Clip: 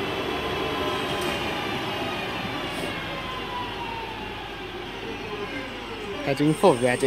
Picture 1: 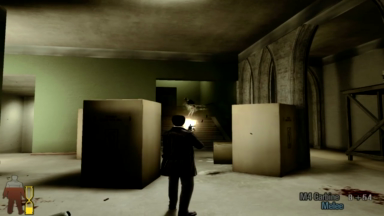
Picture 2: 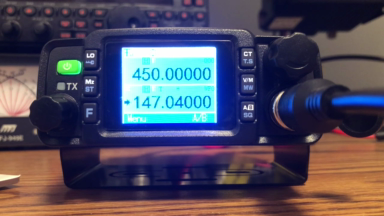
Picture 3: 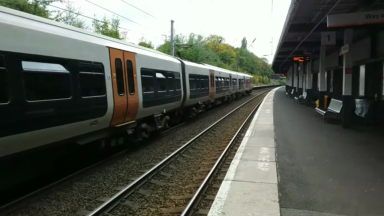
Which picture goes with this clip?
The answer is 3